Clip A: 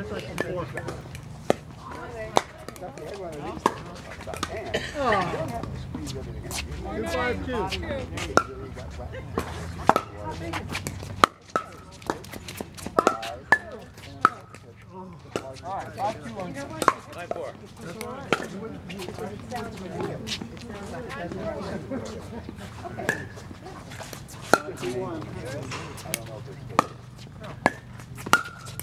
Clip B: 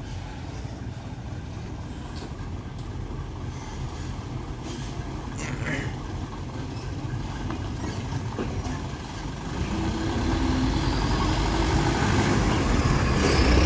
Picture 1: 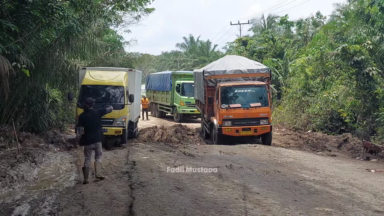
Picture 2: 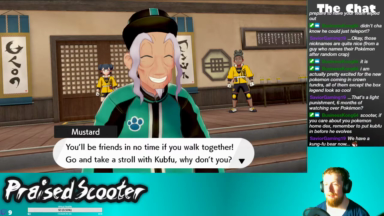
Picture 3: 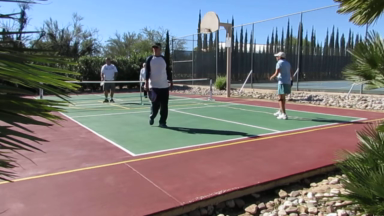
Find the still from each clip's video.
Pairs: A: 3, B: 1